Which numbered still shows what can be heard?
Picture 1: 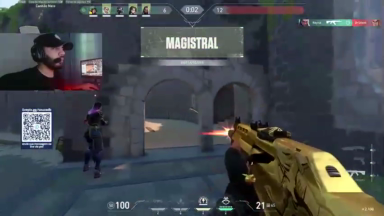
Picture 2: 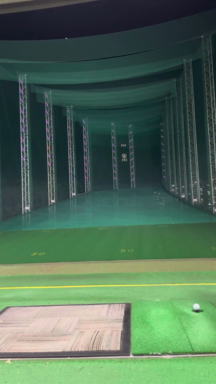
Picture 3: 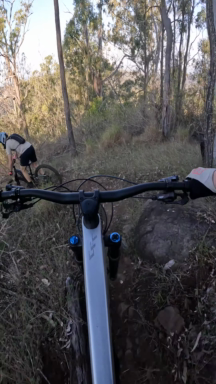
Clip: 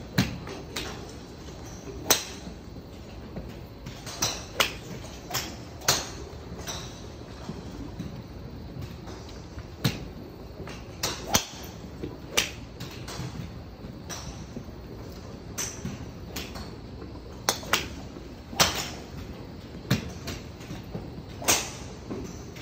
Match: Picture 2